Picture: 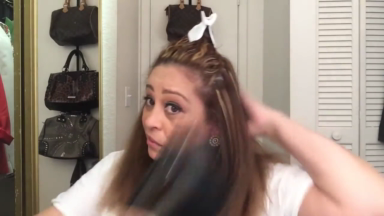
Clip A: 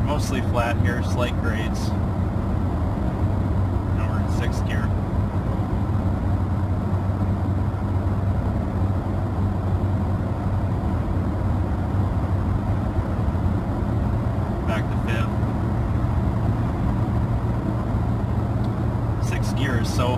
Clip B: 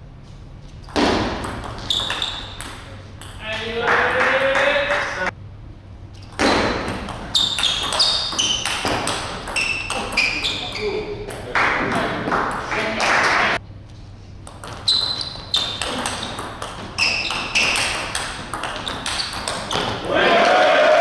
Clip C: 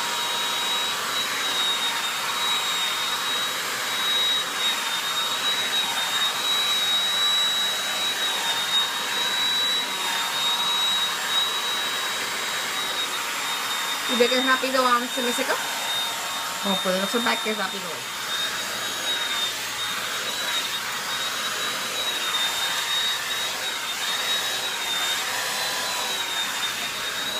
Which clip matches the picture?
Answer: C